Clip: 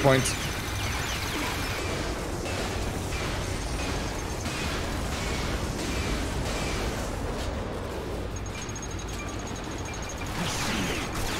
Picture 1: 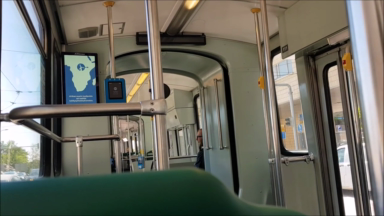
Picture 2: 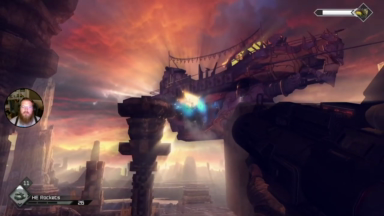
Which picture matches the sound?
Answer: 2